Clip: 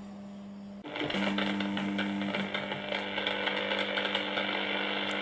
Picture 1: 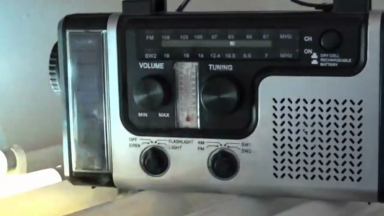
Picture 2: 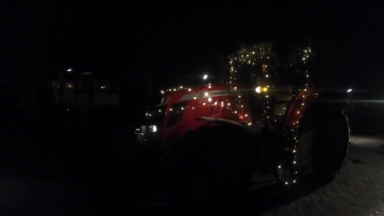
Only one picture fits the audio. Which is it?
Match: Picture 1